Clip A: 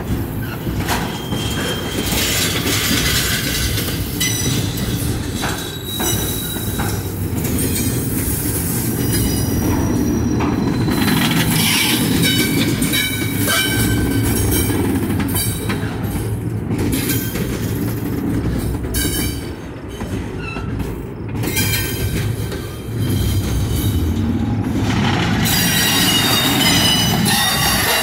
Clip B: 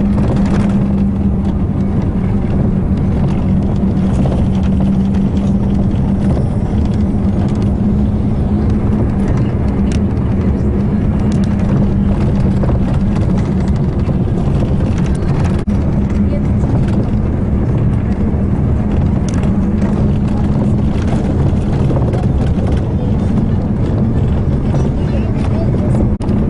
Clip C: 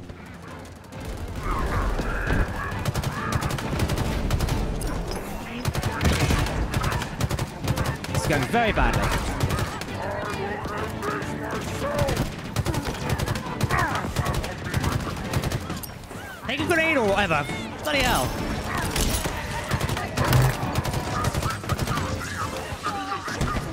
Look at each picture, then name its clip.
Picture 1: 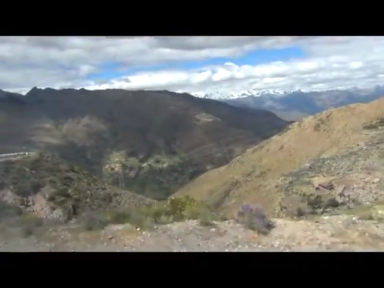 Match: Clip B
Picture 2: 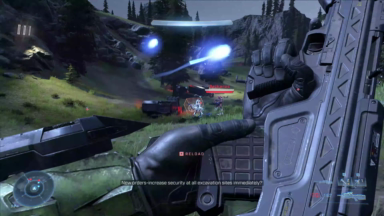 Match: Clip C